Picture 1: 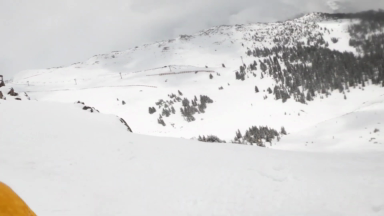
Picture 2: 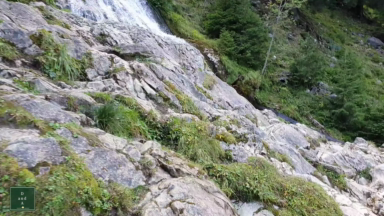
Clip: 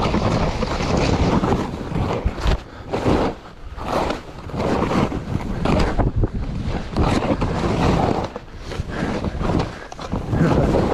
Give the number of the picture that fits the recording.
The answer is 1